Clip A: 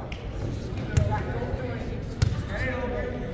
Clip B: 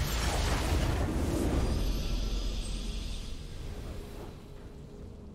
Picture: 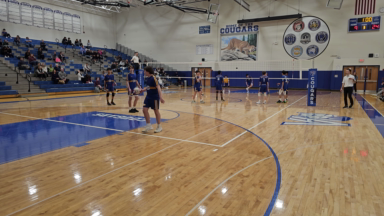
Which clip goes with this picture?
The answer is A